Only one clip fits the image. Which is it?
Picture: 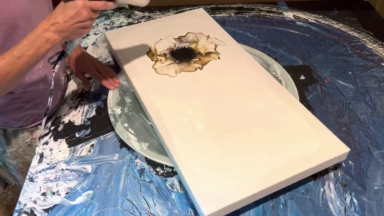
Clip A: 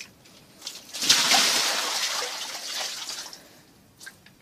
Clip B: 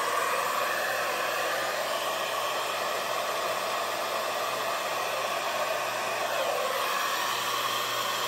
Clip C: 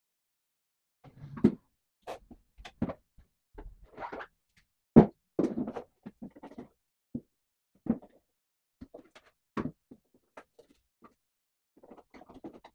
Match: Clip B